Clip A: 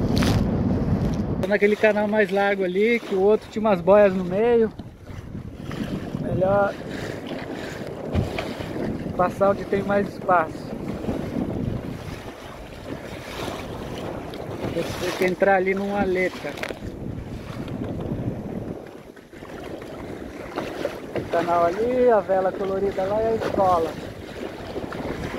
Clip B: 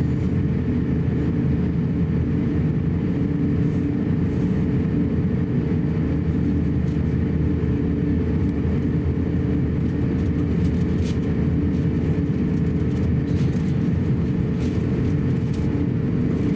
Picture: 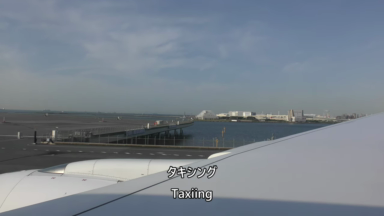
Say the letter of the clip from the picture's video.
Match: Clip B